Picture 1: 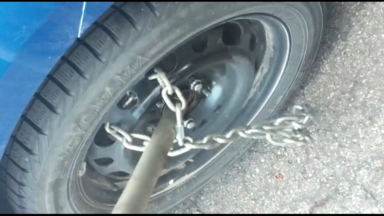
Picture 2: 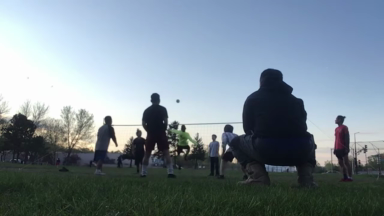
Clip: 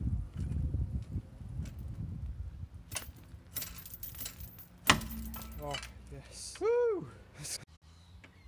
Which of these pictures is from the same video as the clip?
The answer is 1